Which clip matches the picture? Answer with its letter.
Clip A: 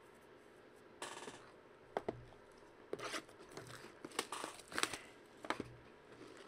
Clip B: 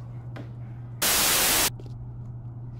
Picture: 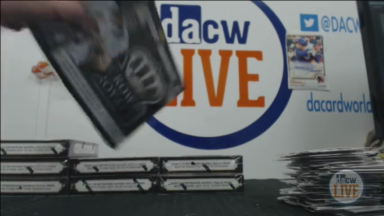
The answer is A